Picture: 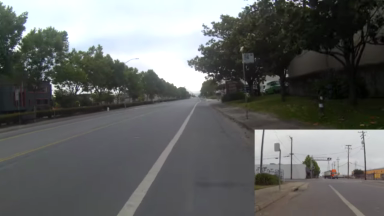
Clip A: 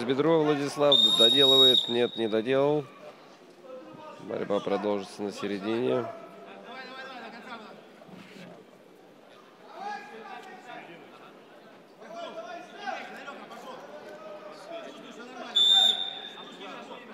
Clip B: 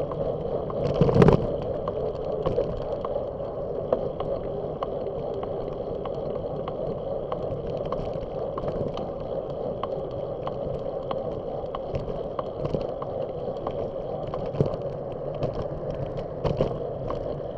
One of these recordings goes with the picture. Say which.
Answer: B